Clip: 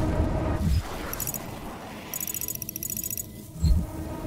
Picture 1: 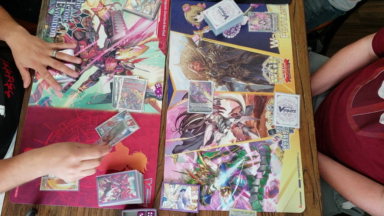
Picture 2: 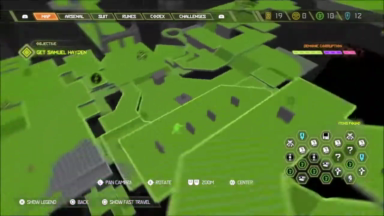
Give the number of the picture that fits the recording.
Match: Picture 2